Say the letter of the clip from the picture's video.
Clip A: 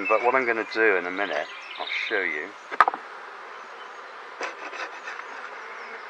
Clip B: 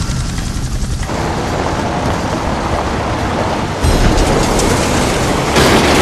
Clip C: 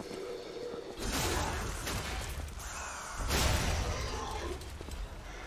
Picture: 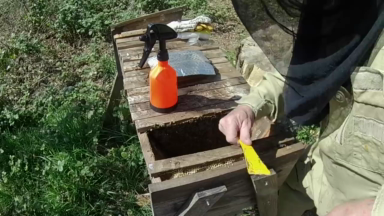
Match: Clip A